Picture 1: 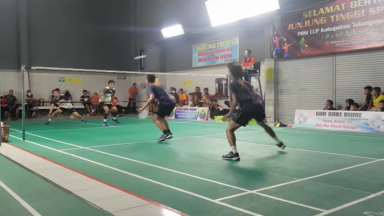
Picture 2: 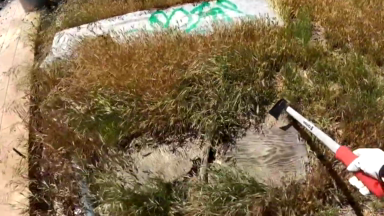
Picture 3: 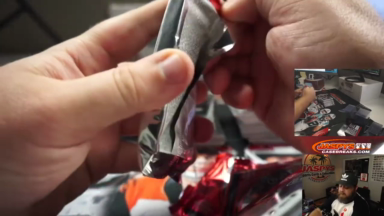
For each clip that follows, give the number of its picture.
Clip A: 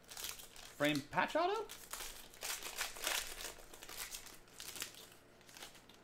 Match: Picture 3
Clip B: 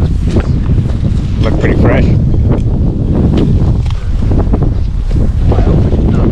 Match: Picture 2